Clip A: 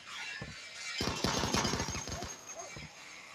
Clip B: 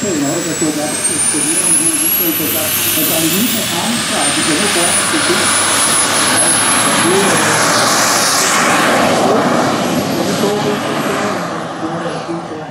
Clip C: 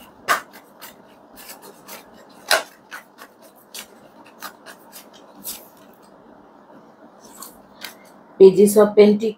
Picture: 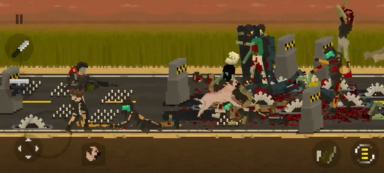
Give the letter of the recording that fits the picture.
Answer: A